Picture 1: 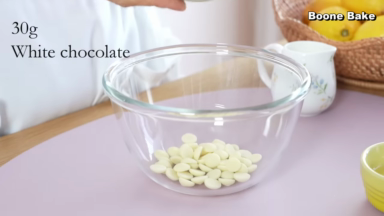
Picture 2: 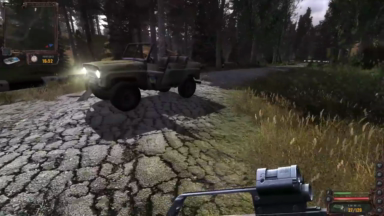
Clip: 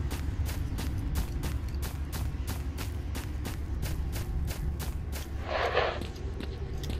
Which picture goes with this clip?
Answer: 2